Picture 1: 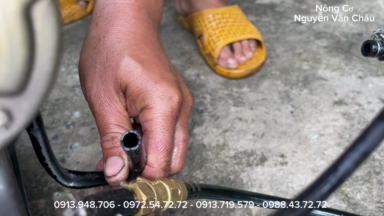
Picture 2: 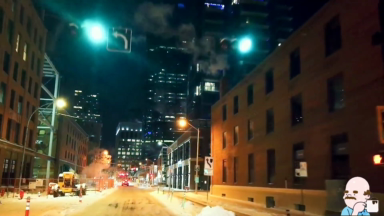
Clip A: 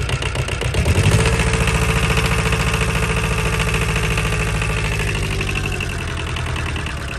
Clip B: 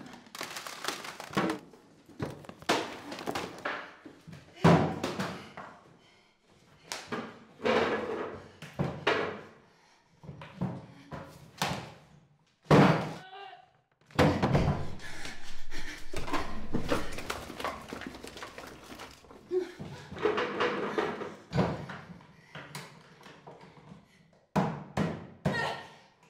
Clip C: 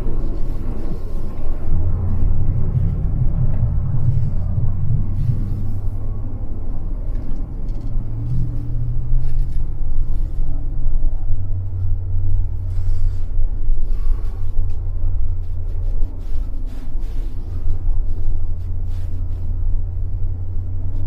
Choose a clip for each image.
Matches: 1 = A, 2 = C